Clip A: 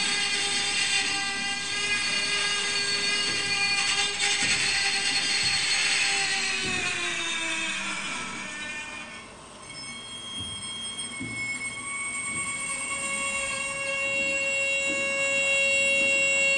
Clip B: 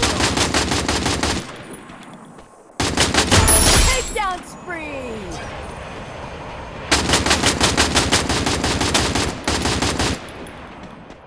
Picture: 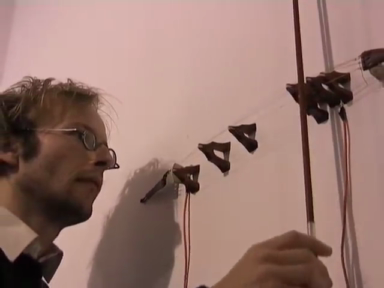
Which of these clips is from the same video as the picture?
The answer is A